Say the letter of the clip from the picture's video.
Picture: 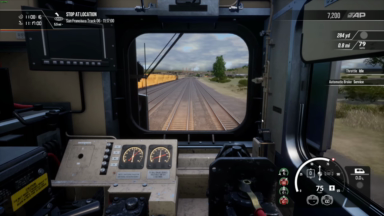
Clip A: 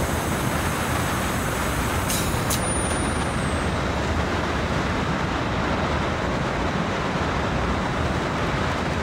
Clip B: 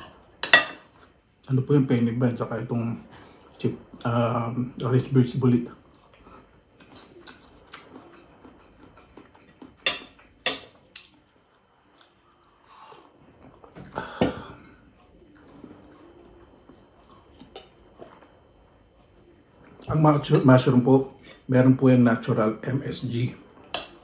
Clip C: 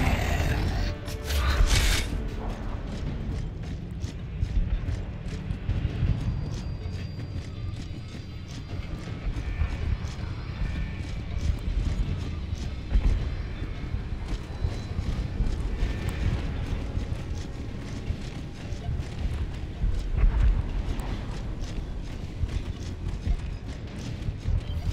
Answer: A